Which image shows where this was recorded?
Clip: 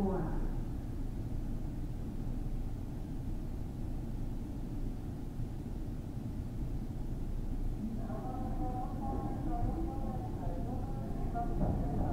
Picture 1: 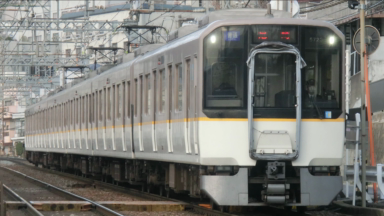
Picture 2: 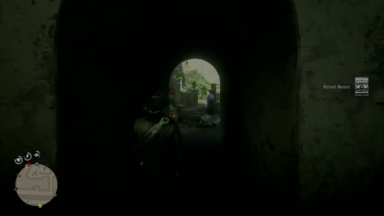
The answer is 1